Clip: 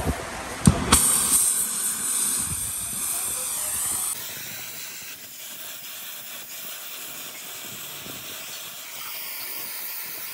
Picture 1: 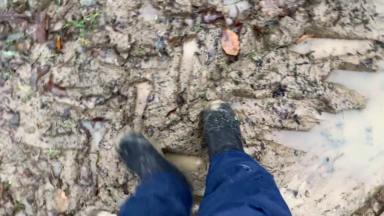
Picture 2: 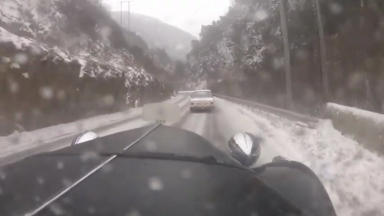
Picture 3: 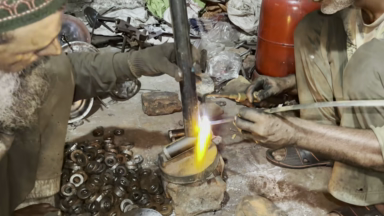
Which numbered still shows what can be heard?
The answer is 3